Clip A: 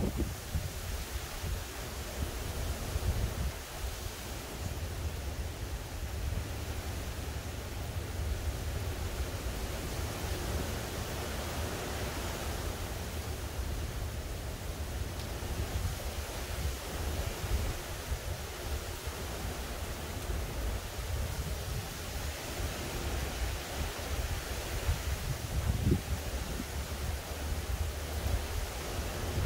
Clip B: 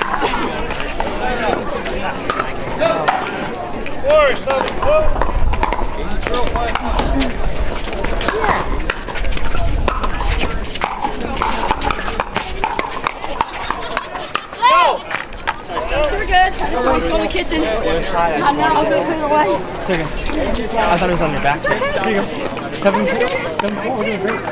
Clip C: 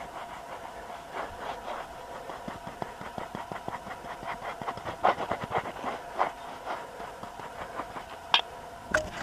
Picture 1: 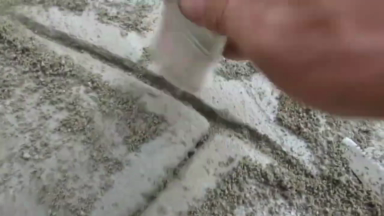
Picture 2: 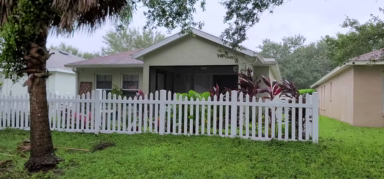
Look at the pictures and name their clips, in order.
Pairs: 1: C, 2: A